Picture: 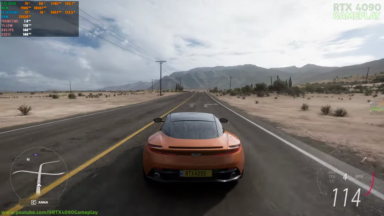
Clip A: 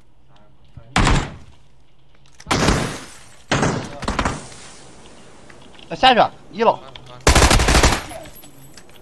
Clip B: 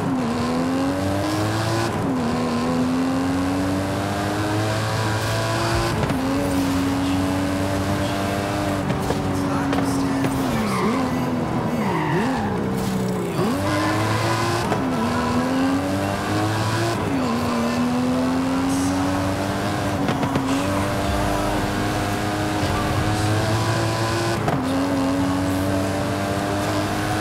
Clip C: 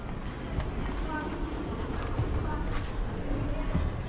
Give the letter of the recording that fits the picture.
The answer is B